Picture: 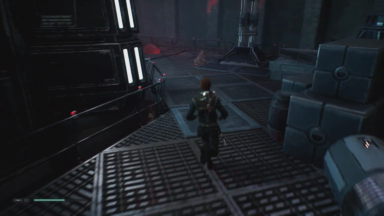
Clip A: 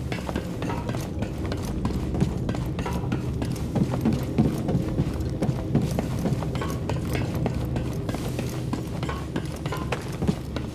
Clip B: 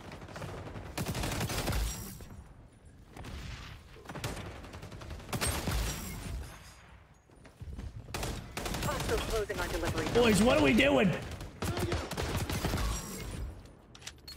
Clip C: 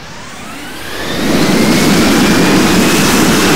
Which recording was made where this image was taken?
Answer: A